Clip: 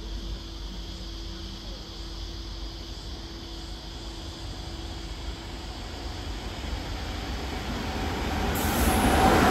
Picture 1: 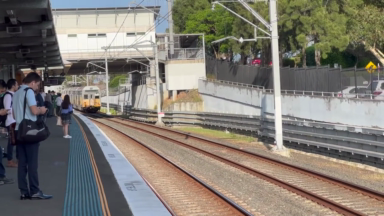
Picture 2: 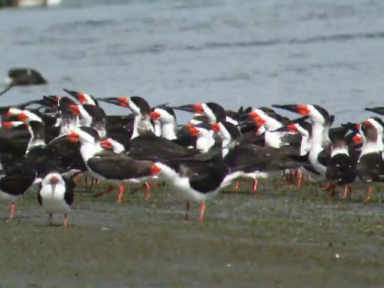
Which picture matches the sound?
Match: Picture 1